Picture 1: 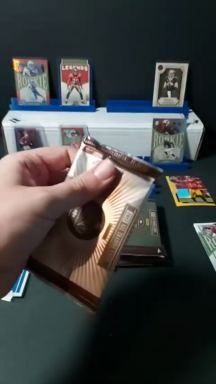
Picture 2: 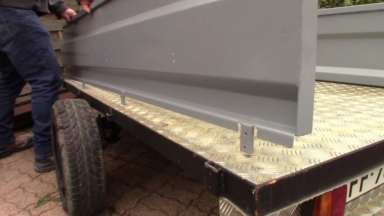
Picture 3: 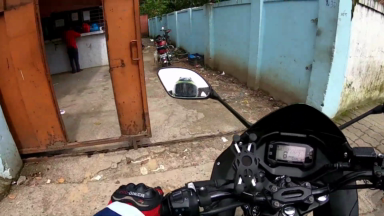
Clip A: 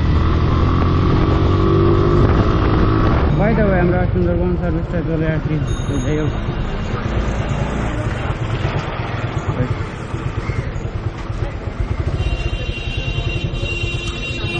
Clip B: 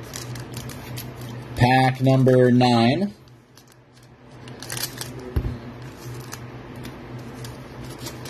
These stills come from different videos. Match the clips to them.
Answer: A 3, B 1